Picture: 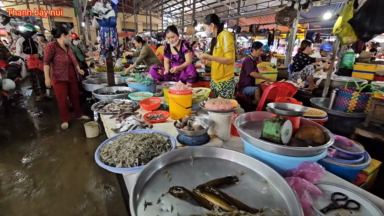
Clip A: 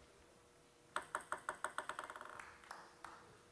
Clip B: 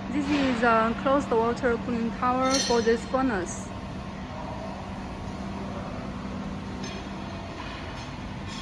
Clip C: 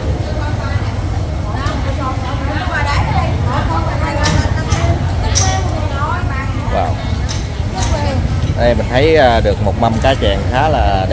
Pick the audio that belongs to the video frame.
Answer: C